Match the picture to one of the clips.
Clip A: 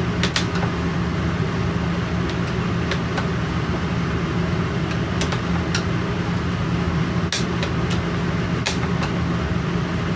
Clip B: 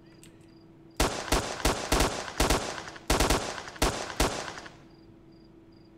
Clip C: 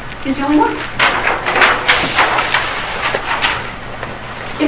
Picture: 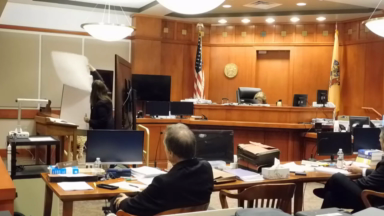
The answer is C